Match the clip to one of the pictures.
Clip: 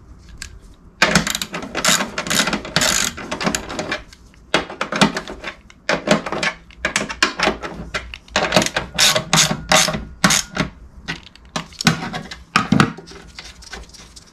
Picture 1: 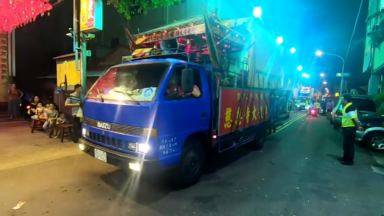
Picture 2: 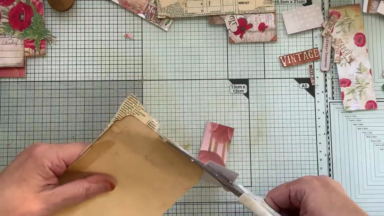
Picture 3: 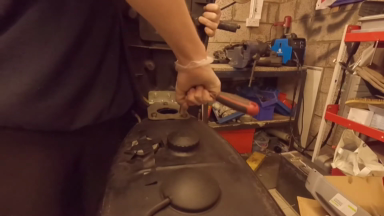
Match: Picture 3